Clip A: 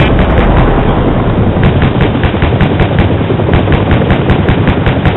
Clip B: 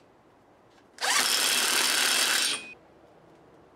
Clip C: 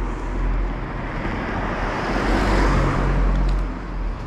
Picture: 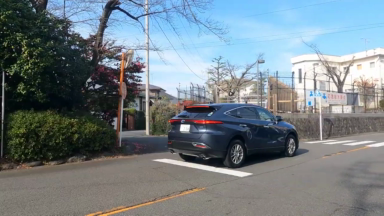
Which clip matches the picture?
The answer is C